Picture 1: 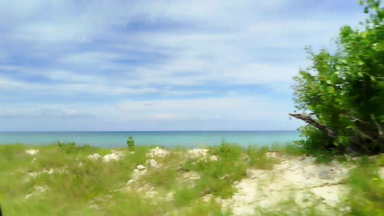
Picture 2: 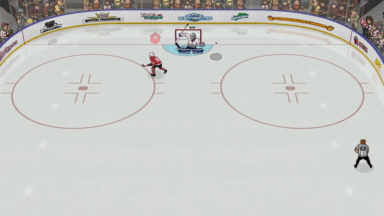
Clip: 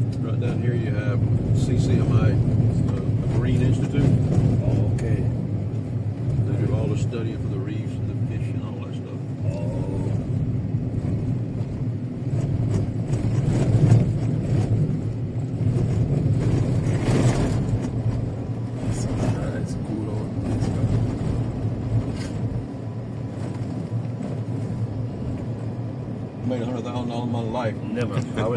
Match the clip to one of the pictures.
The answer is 1